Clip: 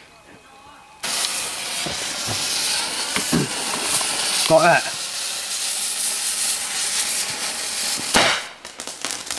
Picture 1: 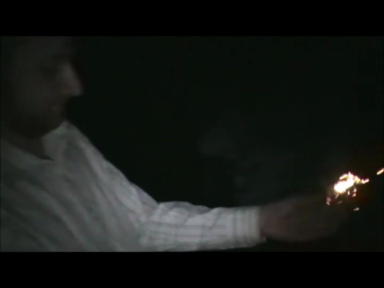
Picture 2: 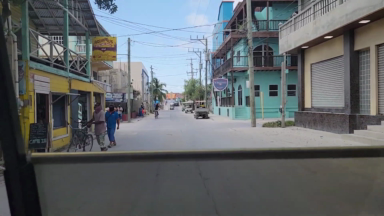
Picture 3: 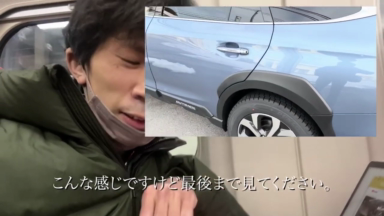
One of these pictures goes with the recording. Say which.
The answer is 1